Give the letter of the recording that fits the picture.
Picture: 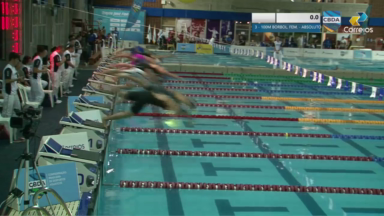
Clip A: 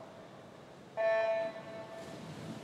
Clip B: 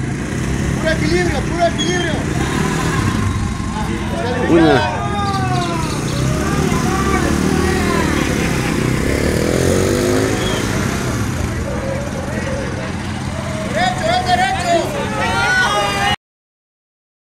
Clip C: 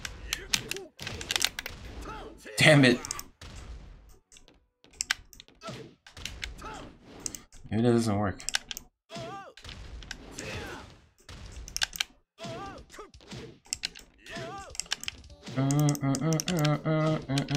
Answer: A